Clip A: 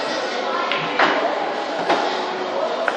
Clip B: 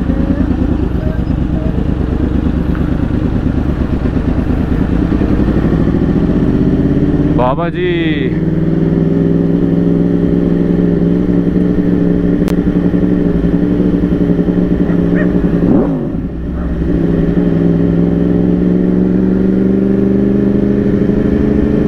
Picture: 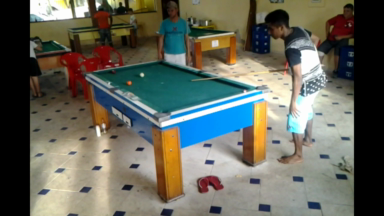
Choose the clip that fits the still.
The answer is A